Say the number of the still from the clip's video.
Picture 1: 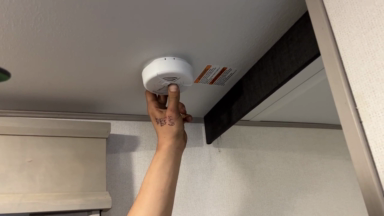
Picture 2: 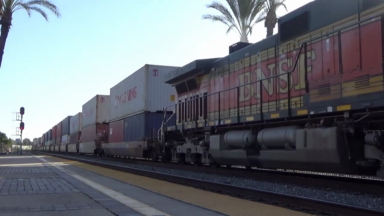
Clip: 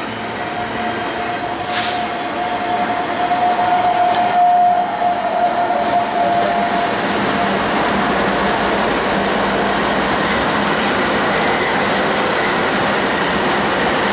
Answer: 2